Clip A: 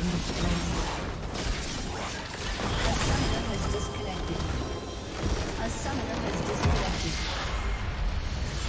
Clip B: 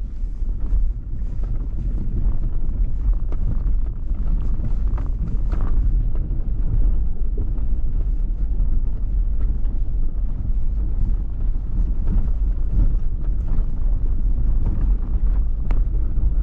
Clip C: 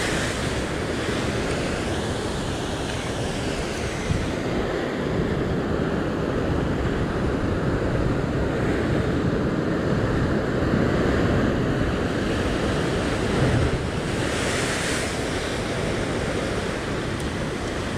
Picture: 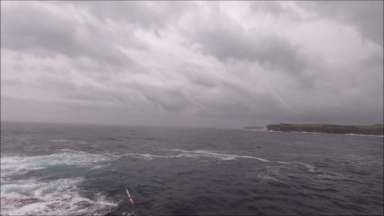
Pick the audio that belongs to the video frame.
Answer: C